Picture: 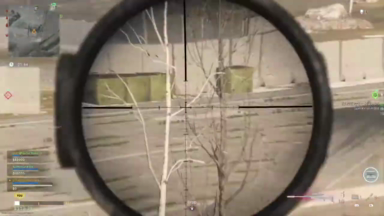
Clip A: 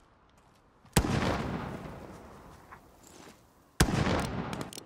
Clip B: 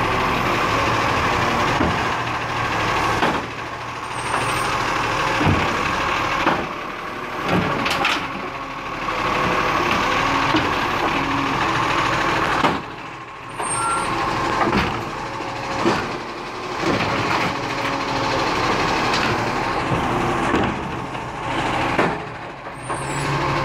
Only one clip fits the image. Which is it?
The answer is A